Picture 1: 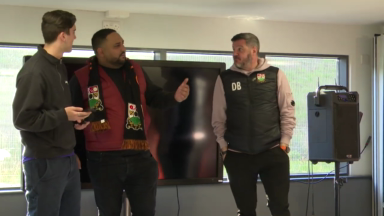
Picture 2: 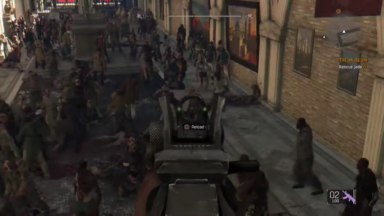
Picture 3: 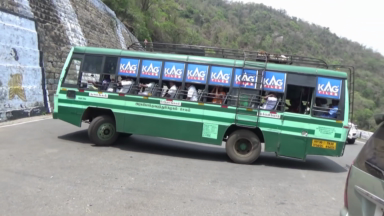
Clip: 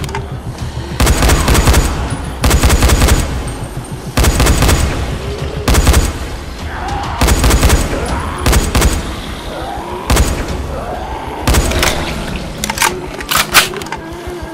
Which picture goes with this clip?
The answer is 2